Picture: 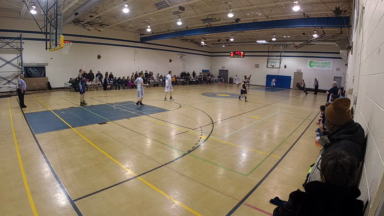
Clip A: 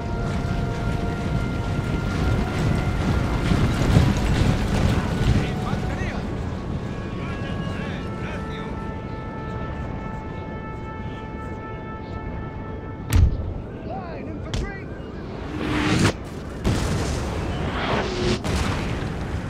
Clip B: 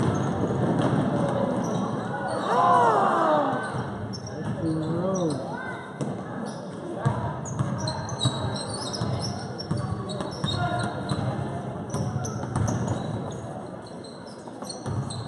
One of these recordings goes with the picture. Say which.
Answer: B